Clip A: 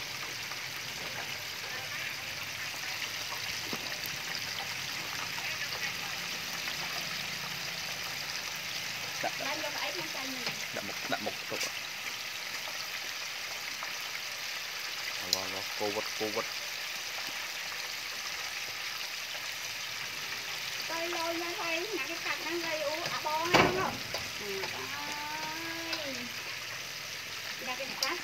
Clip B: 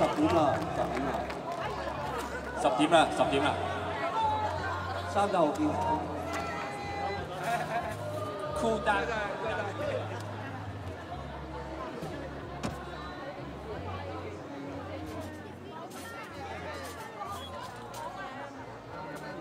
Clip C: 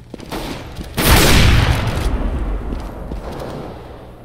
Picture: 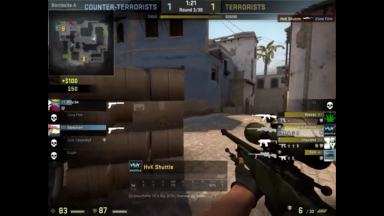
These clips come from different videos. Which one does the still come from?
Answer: C